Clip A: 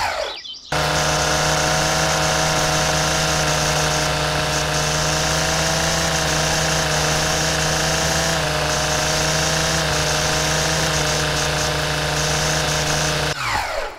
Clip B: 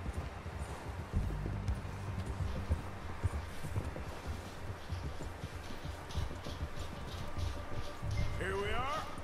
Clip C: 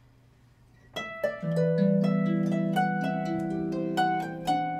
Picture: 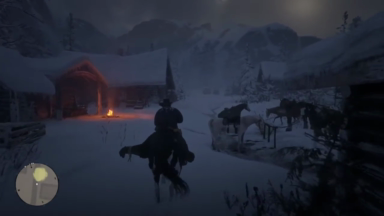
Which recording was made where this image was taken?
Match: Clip B